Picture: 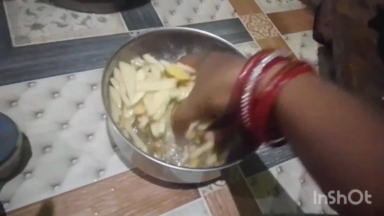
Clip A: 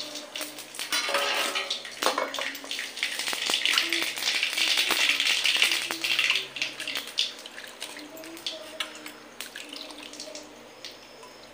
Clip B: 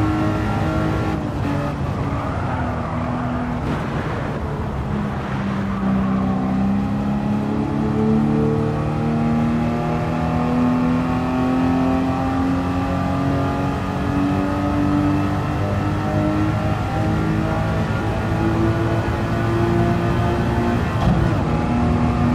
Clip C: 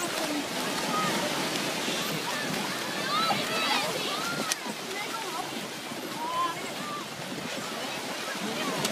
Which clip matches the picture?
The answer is A